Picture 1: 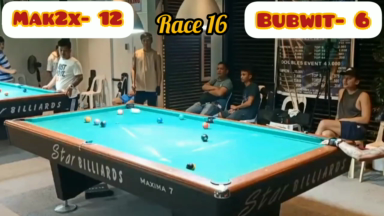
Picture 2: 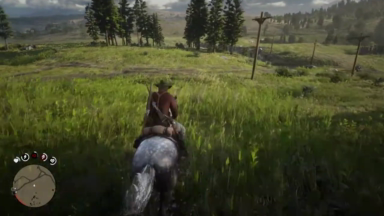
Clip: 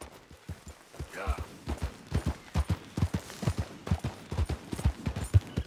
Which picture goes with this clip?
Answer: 2